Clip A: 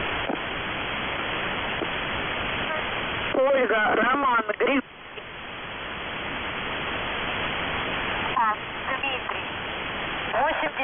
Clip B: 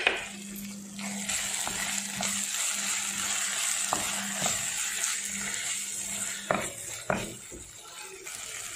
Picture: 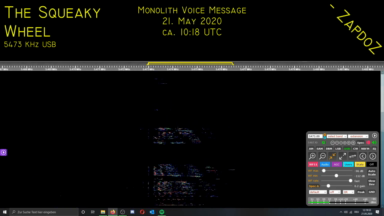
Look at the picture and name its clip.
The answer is A